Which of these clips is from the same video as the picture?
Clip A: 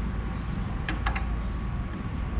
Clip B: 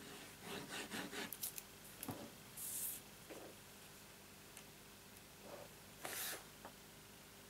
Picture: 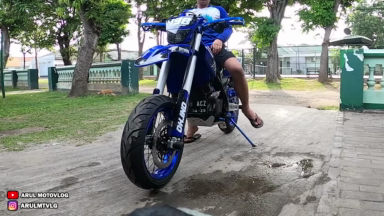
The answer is A